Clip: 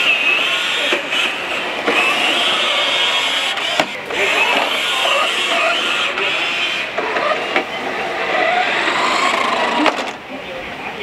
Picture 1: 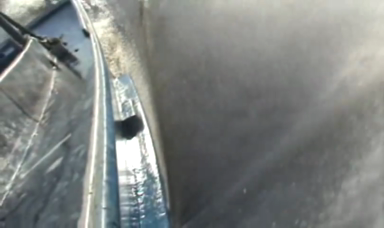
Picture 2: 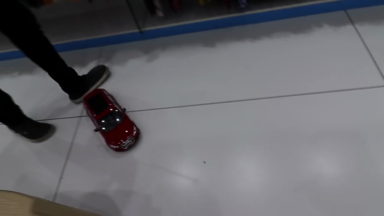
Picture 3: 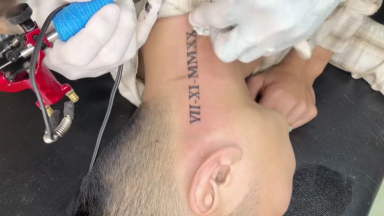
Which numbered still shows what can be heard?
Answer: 2